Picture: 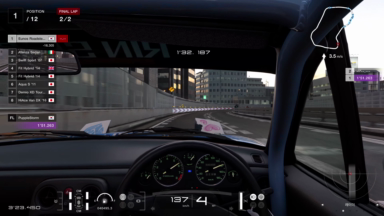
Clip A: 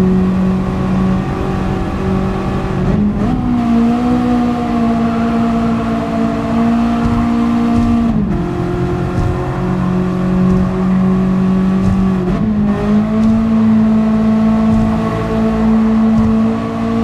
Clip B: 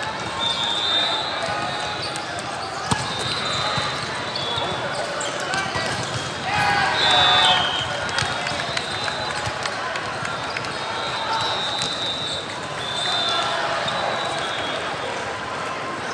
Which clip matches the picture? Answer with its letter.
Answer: A